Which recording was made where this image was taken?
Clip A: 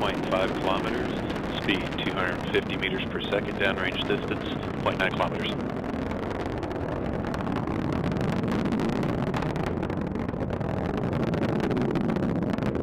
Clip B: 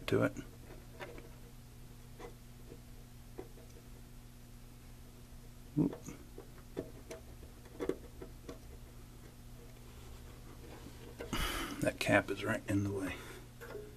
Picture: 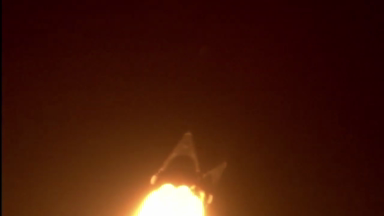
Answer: A